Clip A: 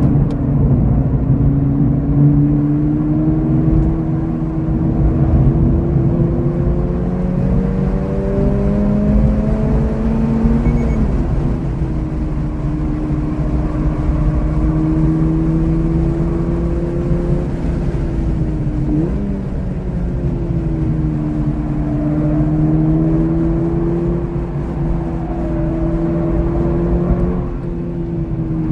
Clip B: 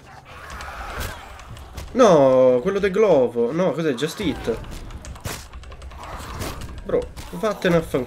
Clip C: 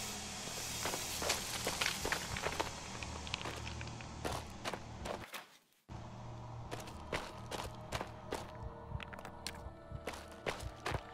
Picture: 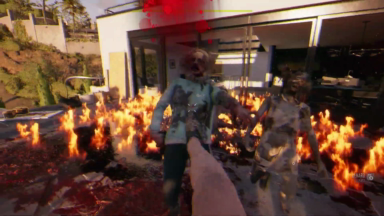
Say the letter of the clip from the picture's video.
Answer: B